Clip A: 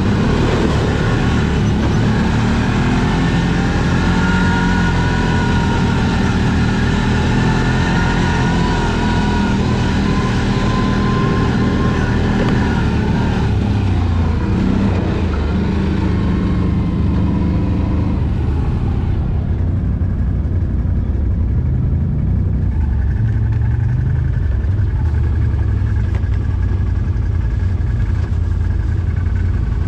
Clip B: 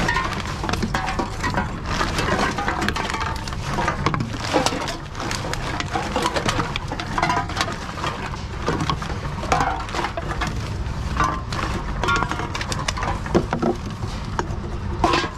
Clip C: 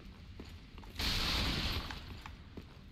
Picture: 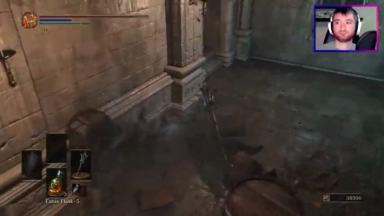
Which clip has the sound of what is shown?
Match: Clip C